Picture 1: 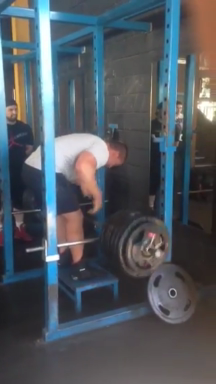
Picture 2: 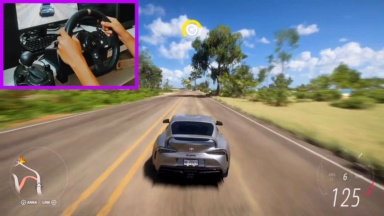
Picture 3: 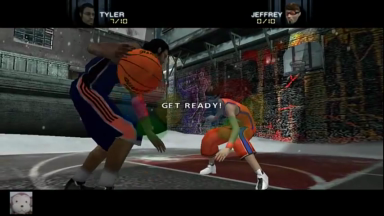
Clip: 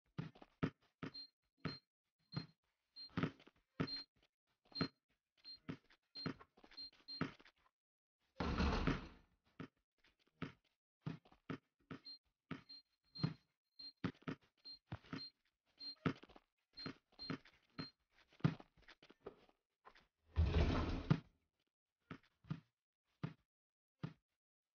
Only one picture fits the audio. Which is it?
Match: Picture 3